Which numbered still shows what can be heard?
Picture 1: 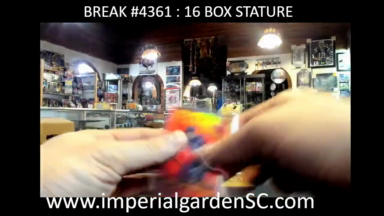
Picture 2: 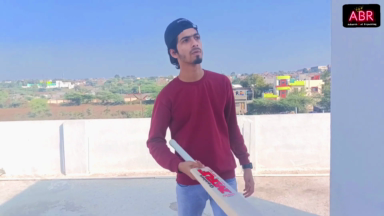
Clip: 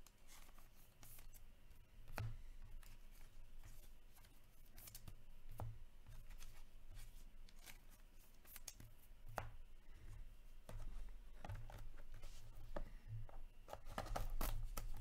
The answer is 1